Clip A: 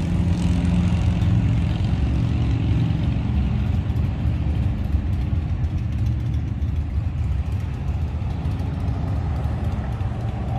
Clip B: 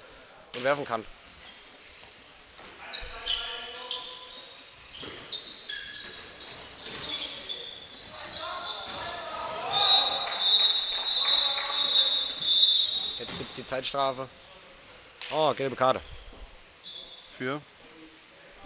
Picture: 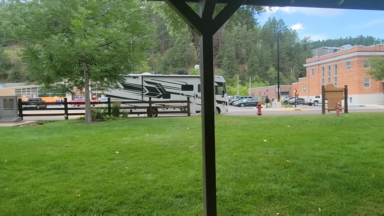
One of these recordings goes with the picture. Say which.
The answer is A